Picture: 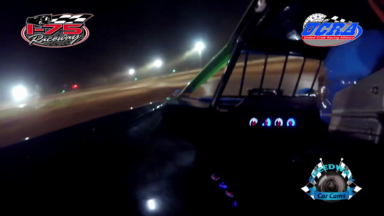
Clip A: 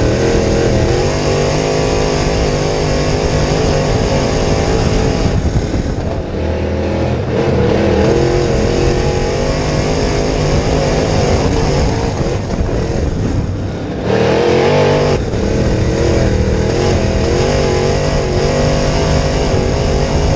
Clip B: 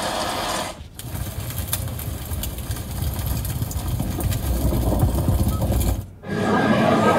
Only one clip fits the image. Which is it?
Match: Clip A